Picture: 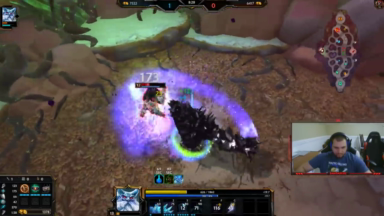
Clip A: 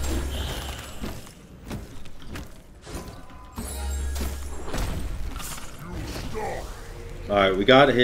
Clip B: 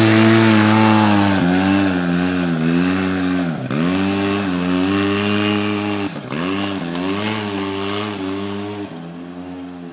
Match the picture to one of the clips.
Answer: A